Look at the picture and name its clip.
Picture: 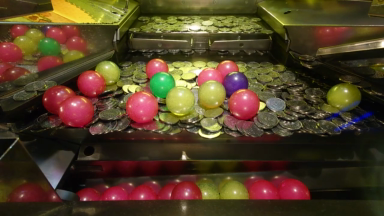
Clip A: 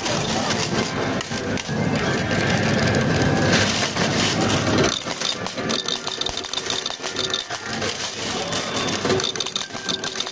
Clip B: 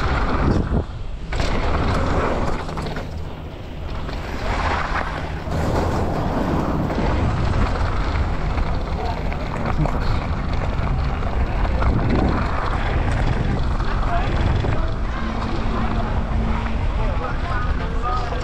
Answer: A